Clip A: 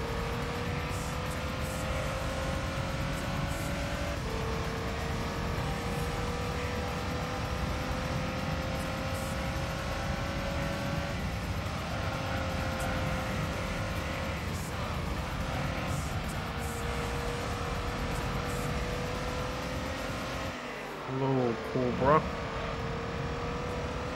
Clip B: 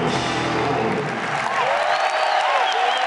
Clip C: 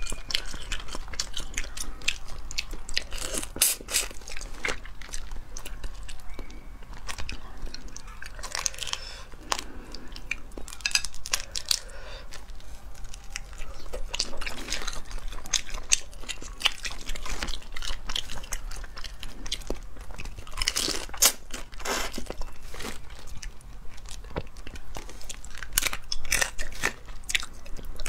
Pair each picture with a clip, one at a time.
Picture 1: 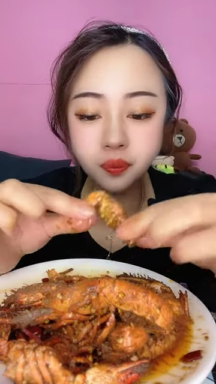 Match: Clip C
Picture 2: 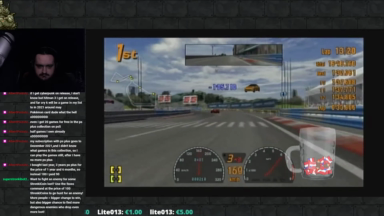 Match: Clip A